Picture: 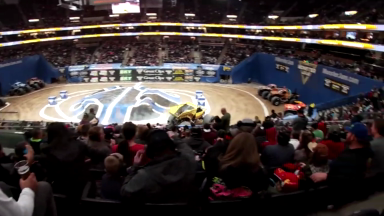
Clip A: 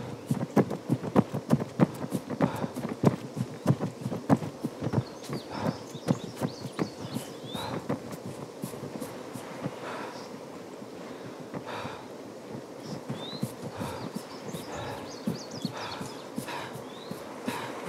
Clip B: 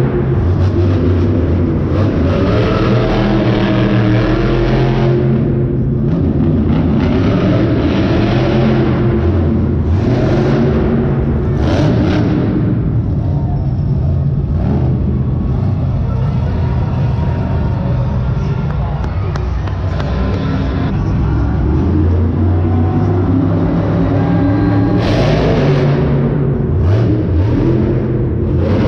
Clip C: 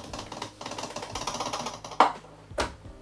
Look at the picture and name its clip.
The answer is B